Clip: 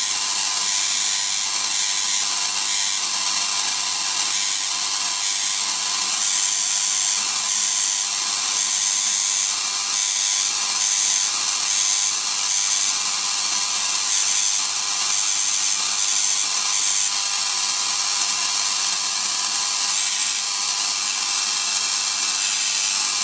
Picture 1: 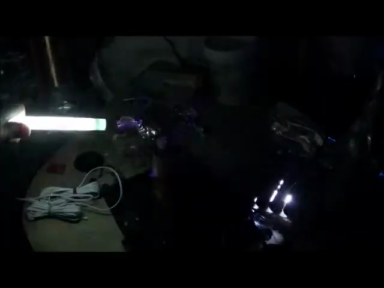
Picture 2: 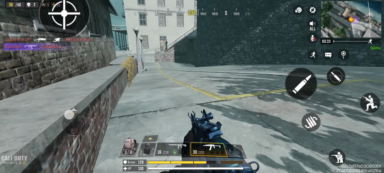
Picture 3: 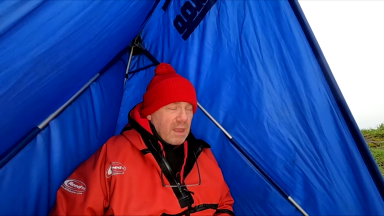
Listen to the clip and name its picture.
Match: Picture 1